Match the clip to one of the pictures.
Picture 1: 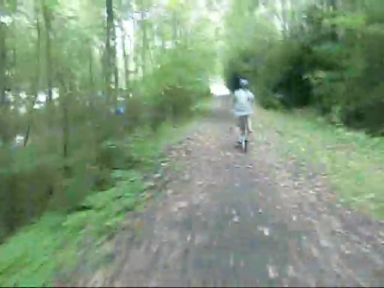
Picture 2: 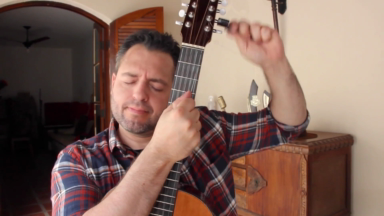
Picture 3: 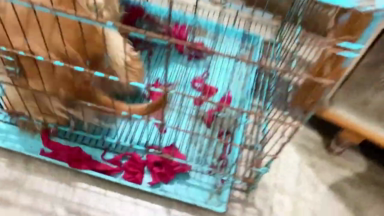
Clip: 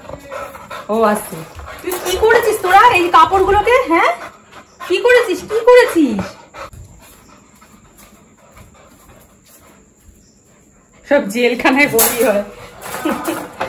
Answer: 3